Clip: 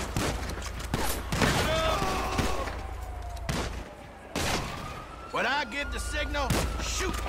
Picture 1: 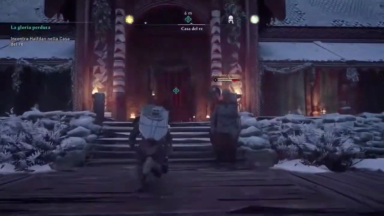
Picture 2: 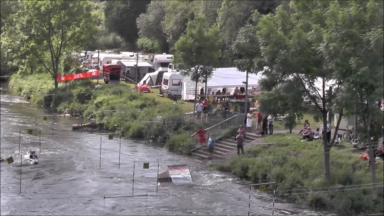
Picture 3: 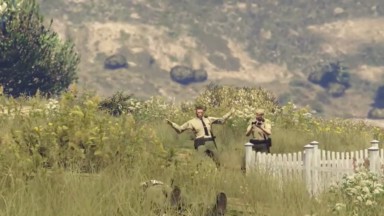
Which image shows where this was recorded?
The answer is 3